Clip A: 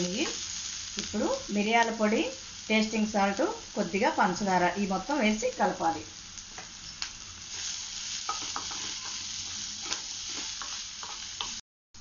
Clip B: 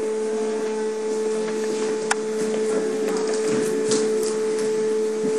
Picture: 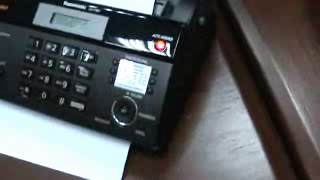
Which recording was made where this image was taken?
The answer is B